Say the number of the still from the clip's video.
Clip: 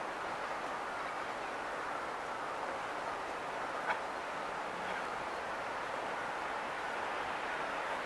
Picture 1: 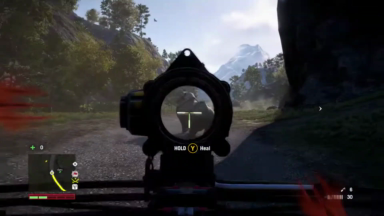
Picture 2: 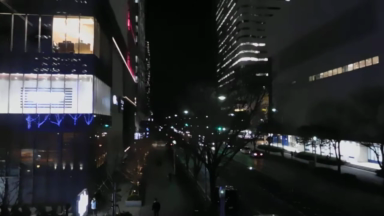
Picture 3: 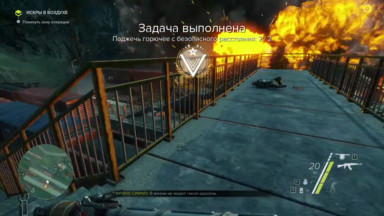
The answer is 2